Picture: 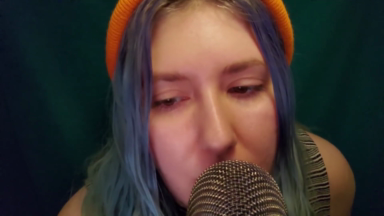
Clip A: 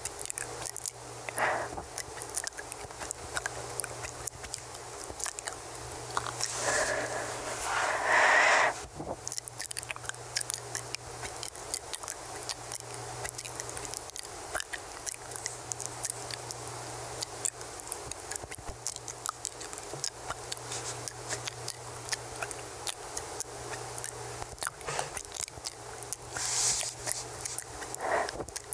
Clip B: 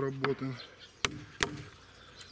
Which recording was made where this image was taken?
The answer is A